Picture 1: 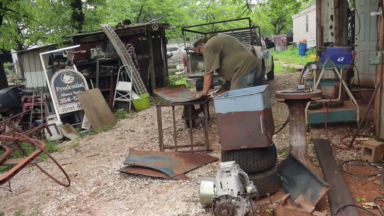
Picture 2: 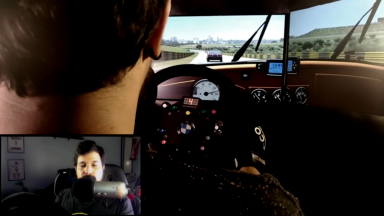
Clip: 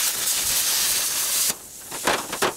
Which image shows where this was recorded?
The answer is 1